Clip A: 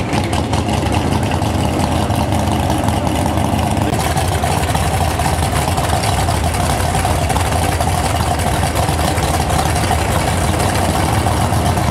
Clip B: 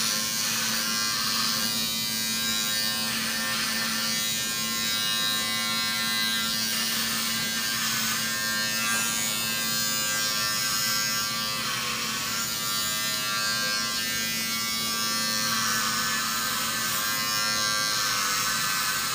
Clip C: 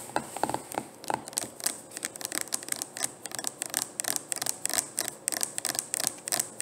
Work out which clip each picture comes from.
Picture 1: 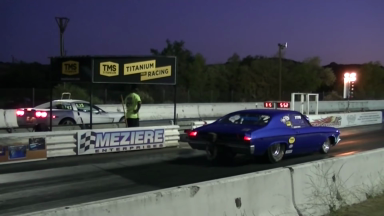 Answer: A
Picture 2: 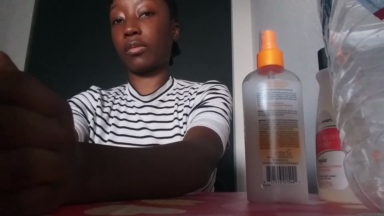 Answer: C